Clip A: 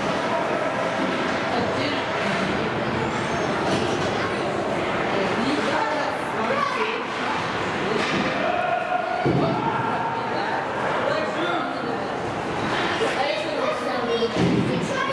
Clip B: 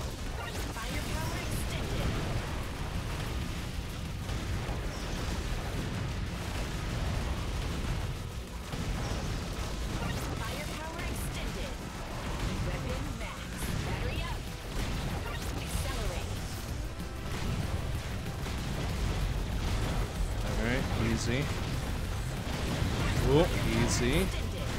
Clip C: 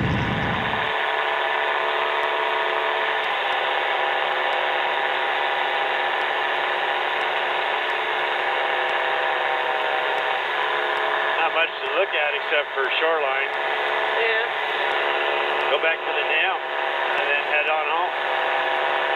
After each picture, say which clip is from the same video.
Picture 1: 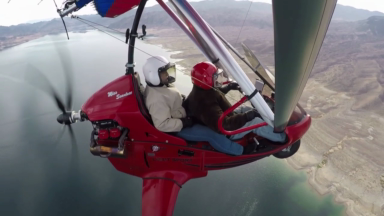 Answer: C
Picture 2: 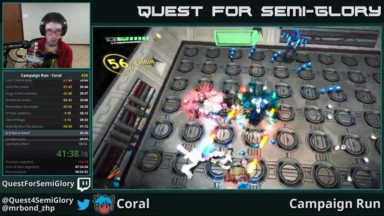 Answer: B